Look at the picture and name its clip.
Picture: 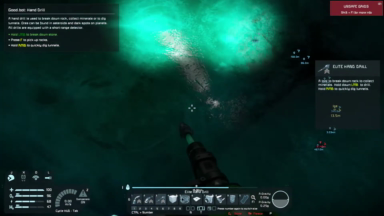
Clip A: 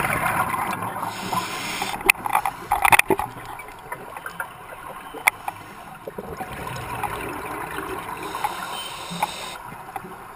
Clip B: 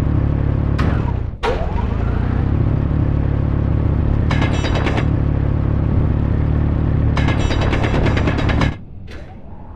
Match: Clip B